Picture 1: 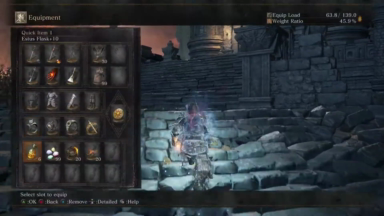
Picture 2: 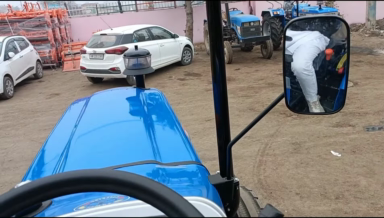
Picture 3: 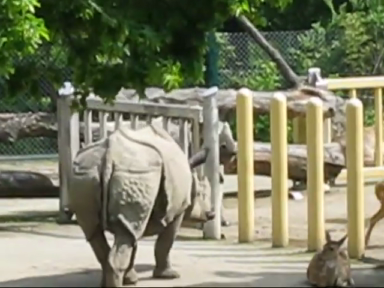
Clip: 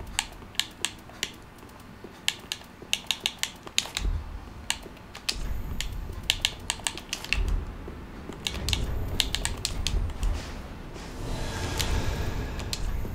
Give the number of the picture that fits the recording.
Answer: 1